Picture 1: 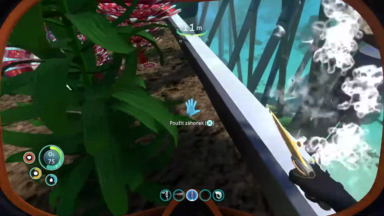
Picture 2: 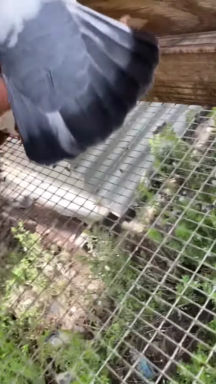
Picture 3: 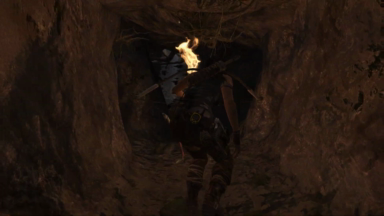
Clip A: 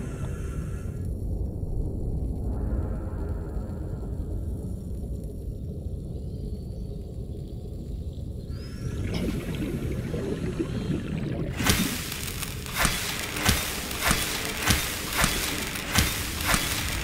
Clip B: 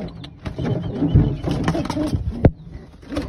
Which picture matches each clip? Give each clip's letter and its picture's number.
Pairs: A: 1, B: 2